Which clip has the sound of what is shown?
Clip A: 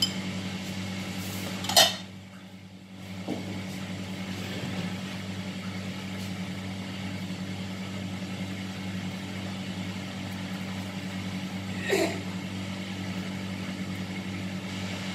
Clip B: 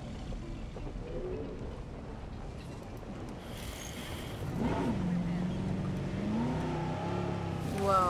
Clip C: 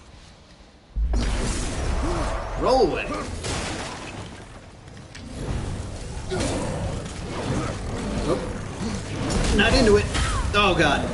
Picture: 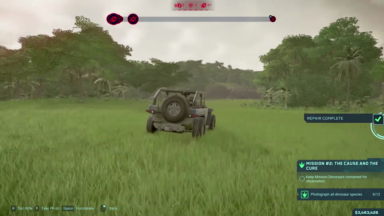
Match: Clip B